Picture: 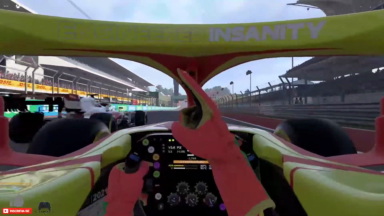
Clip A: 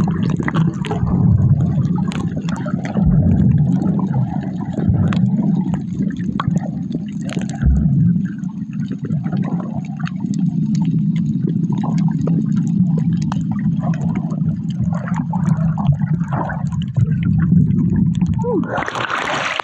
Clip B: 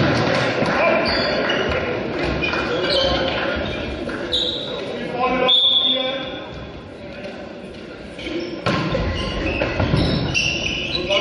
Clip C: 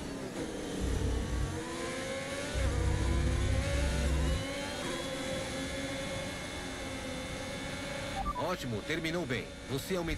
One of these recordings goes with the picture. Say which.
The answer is C